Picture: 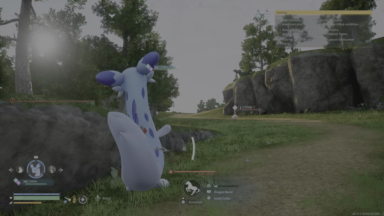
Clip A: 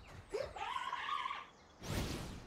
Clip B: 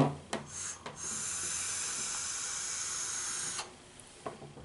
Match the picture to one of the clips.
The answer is A